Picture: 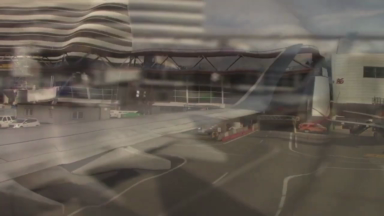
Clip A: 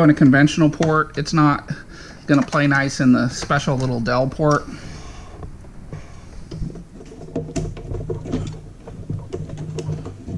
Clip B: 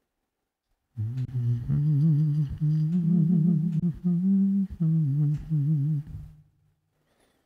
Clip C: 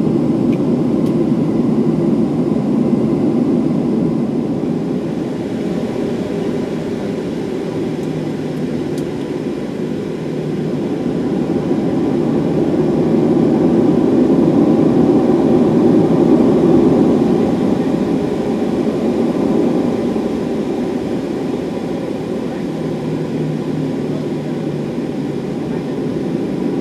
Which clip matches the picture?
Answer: C